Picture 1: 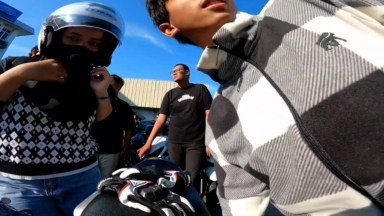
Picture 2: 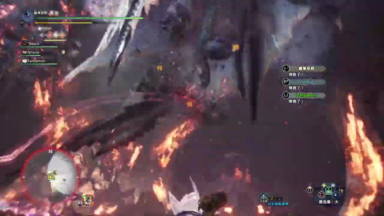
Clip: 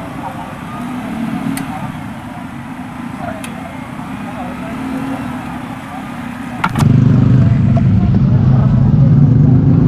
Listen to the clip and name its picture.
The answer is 1